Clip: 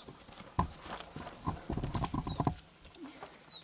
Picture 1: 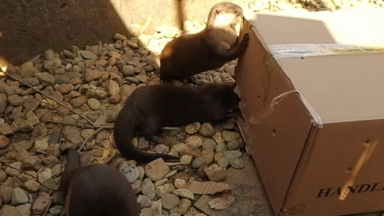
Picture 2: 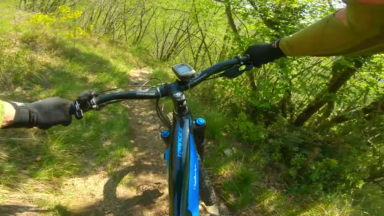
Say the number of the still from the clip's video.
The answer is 1